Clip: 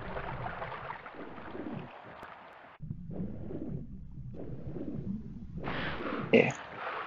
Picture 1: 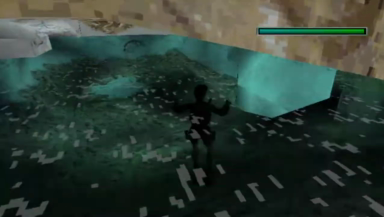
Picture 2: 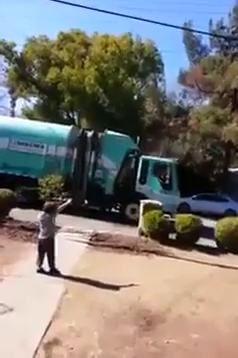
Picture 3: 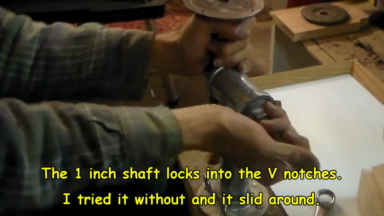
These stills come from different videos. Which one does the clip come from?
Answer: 1